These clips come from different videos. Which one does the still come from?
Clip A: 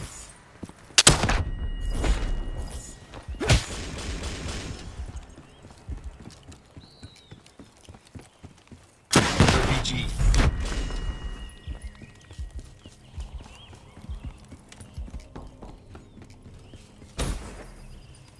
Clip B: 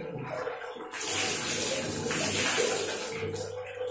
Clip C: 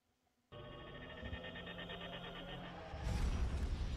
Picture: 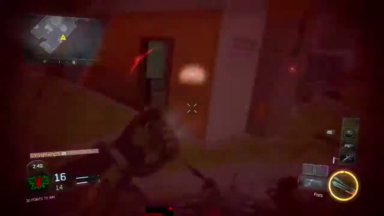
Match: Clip A